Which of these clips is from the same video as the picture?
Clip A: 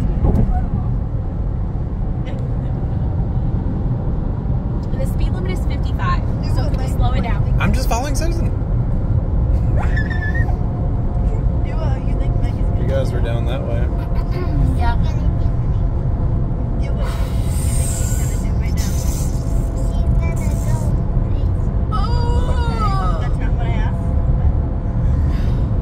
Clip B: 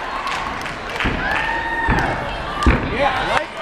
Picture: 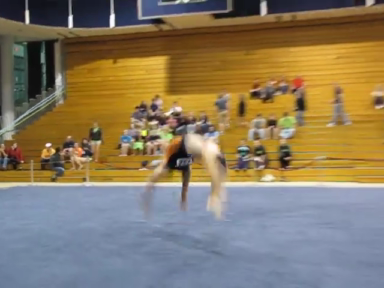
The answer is B